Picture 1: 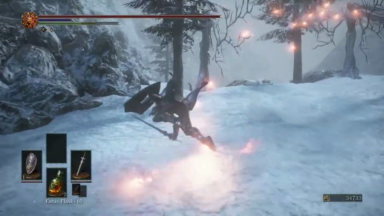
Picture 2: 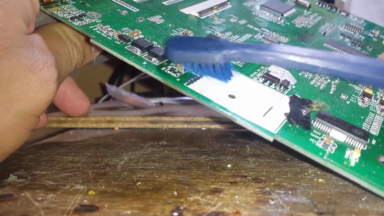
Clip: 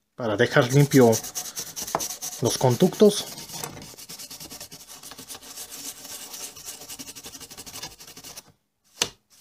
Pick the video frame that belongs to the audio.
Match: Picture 2